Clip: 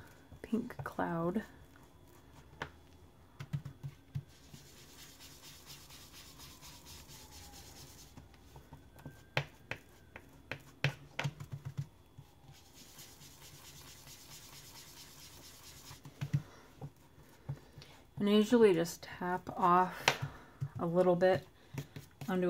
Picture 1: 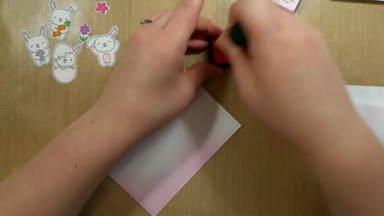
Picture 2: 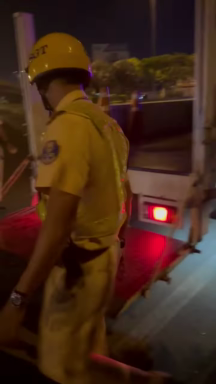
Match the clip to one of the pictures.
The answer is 1